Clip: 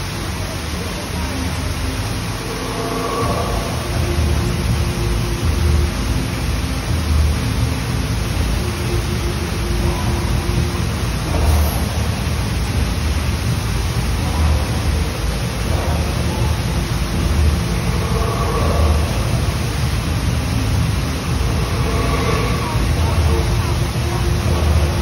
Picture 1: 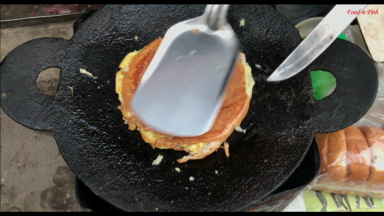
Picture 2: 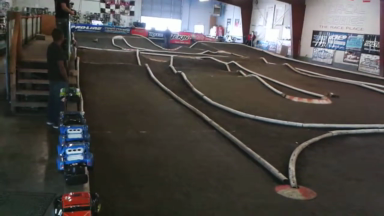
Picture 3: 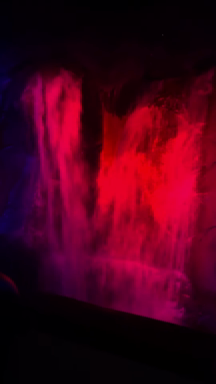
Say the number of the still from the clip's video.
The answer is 3